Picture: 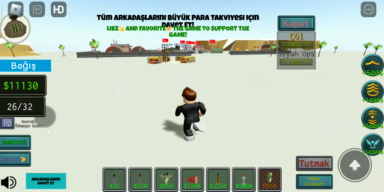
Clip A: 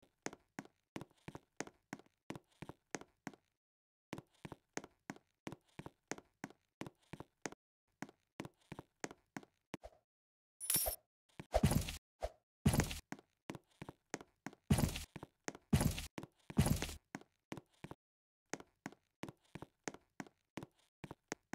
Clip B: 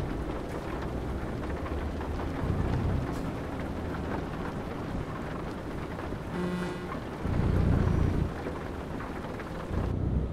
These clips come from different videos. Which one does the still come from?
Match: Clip A